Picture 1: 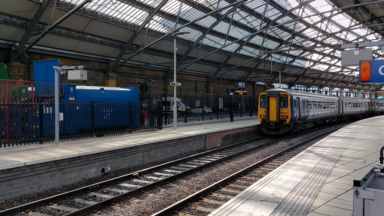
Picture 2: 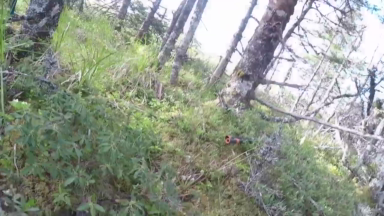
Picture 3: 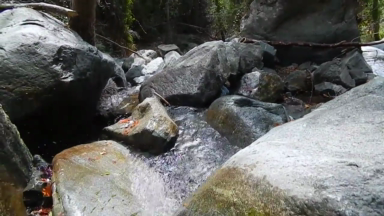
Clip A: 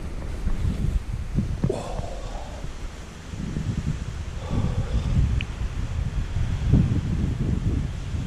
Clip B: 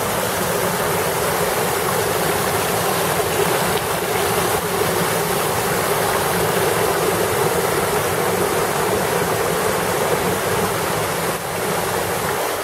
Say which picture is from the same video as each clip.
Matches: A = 2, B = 3